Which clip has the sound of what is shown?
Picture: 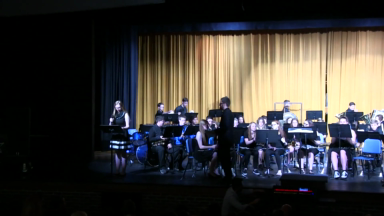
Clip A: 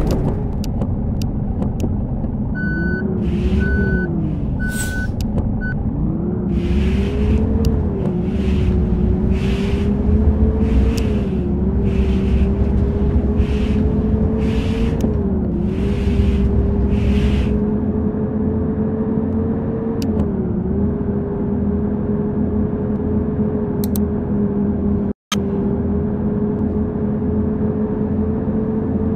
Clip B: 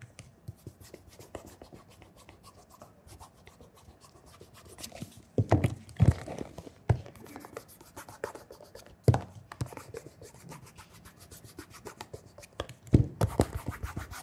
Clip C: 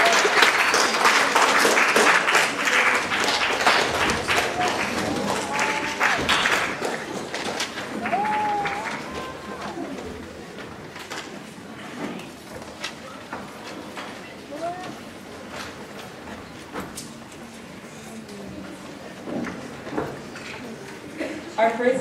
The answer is C